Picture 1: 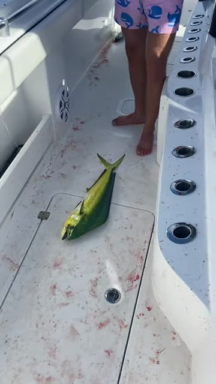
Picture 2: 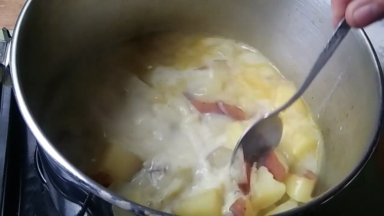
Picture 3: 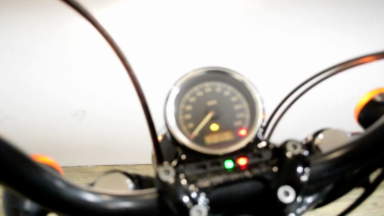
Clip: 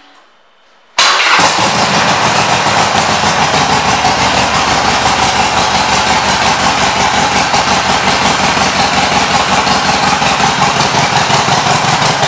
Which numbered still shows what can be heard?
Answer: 3